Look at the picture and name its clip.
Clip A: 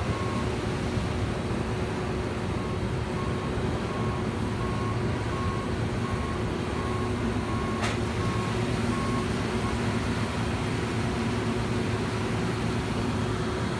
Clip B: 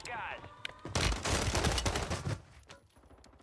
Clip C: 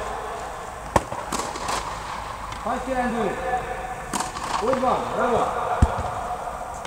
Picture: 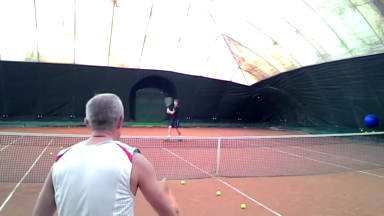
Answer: C